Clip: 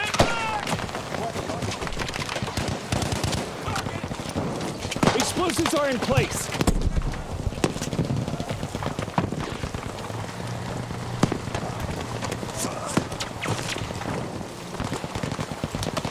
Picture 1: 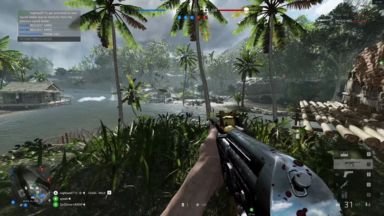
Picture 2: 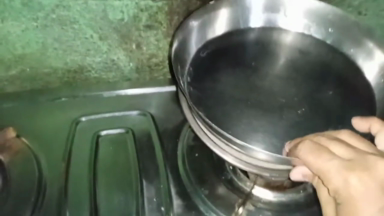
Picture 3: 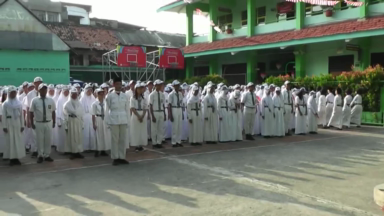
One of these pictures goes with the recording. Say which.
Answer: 1